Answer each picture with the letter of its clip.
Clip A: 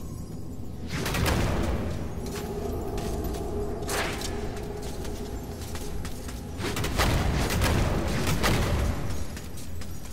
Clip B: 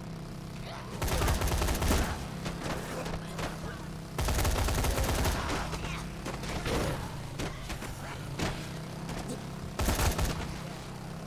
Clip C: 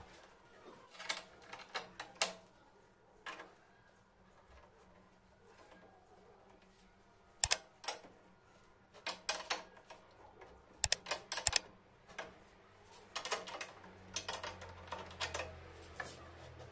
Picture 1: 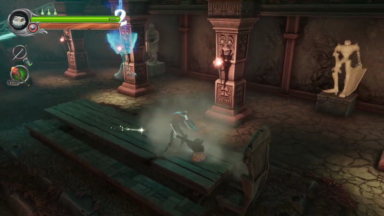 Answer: A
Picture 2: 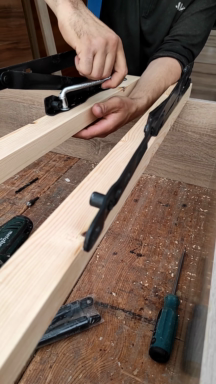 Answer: C